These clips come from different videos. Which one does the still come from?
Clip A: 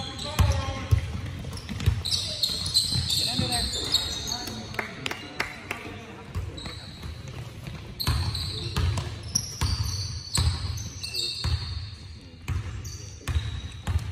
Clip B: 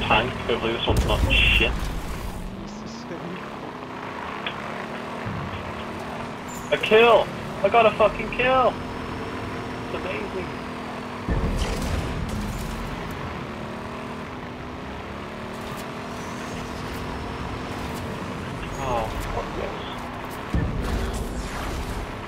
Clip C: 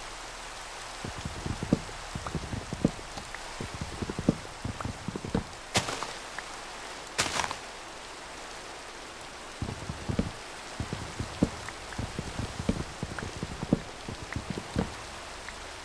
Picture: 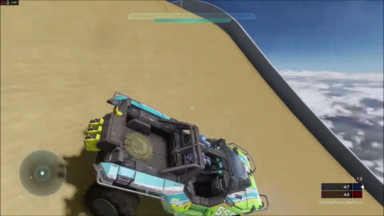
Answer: B